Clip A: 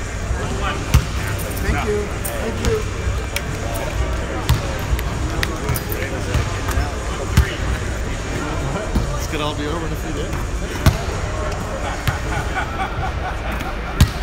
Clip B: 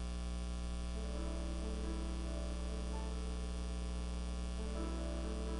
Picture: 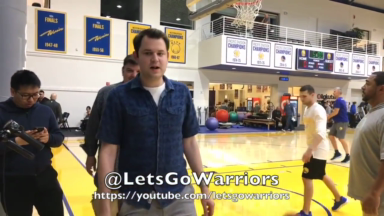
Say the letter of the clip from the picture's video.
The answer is A